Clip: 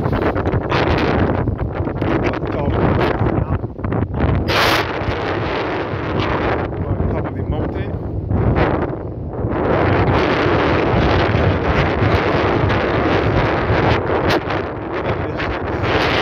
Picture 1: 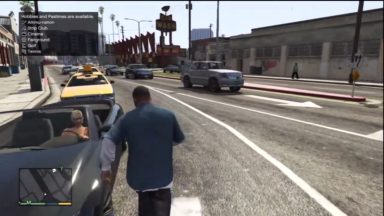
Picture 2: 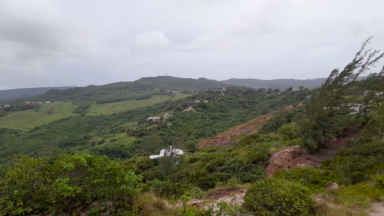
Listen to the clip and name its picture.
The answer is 2